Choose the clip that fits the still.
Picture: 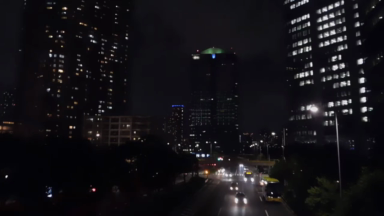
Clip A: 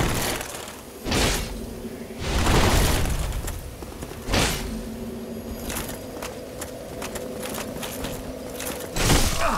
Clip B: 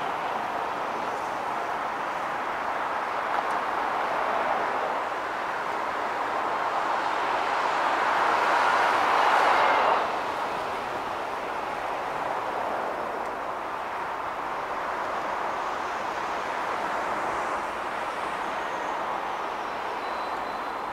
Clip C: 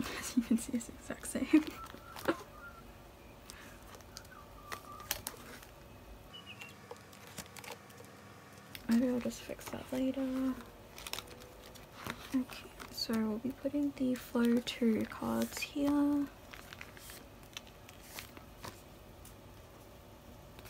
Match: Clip B